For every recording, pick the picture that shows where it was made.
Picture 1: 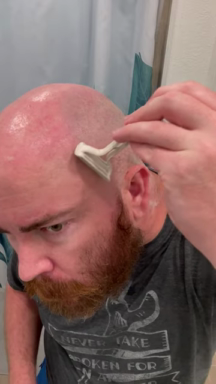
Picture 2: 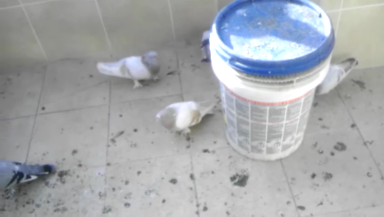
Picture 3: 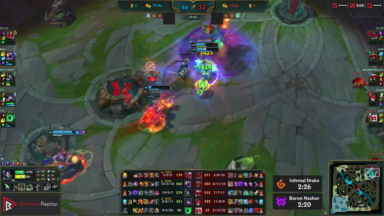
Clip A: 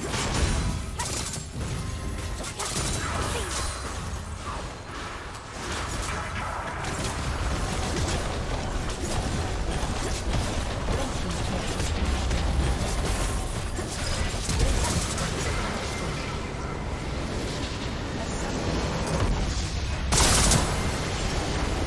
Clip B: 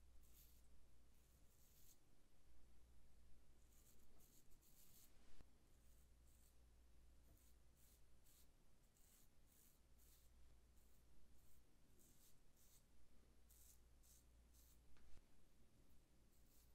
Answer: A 3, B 1